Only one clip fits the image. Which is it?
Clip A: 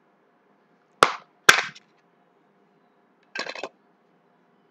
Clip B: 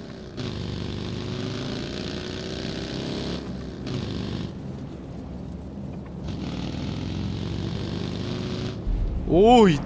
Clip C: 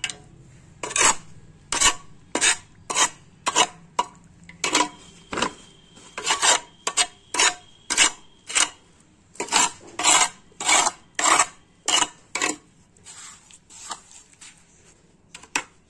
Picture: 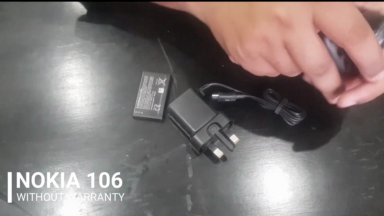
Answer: A